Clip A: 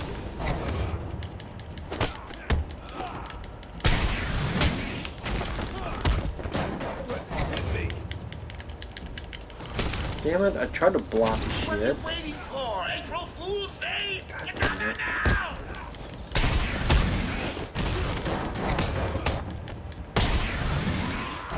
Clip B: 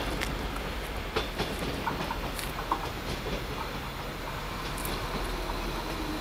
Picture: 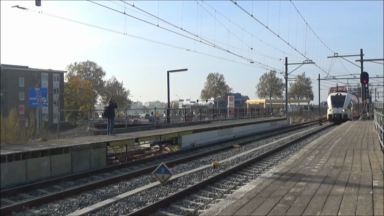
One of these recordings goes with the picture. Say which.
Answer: B